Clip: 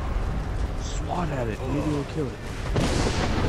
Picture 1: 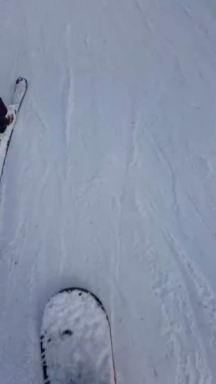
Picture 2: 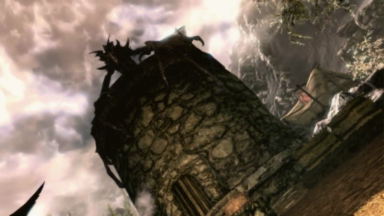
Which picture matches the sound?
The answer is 2